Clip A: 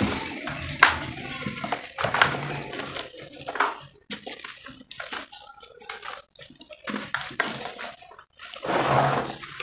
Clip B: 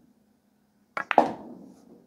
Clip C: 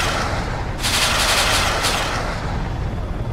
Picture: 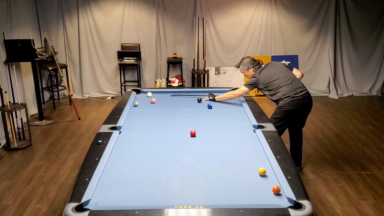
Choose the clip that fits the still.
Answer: B